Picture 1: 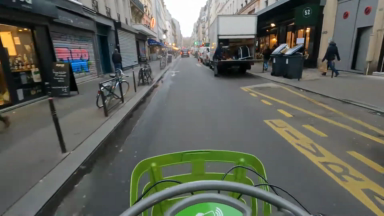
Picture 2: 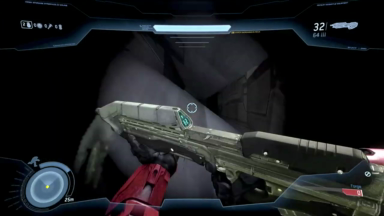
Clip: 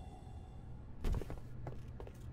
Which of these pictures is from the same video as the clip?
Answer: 2